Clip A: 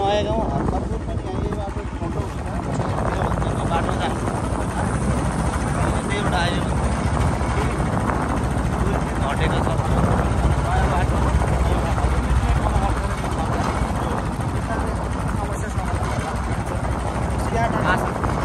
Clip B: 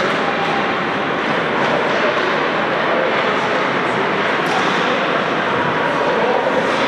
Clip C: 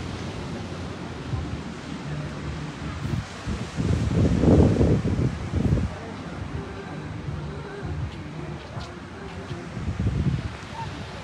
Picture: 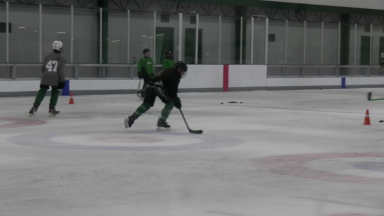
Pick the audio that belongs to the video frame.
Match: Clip B